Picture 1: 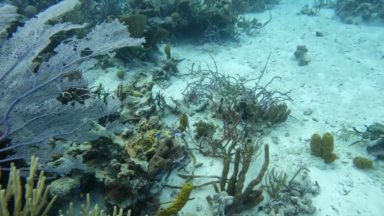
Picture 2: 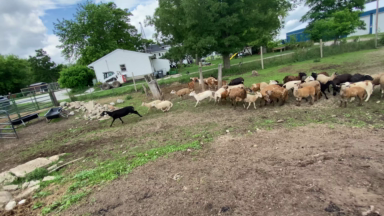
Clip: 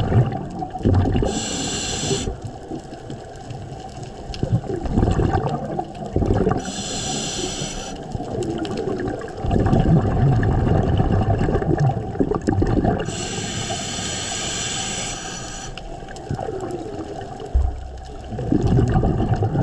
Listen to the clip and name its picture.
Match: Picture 1